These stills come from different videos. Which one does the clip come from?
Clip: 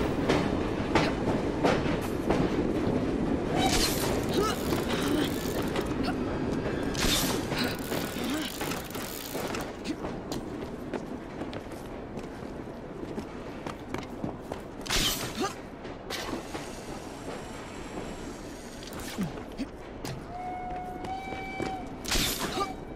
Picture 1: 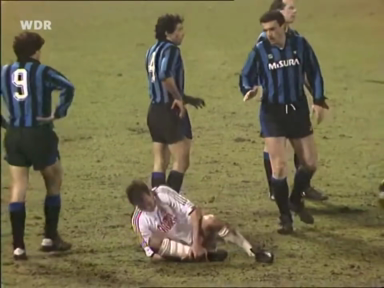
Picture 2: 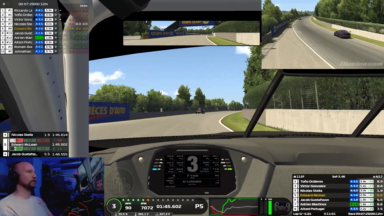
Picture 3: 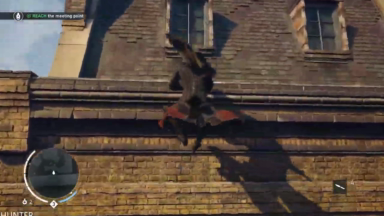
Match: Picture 3